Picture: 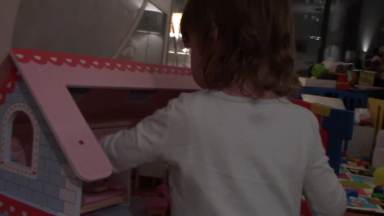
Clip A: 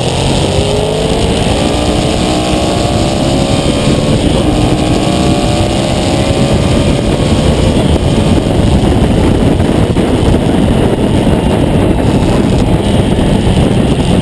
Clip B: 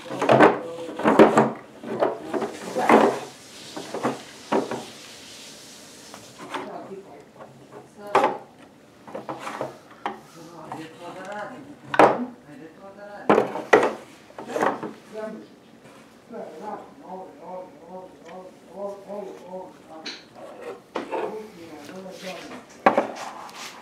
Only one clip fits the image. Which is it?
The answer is B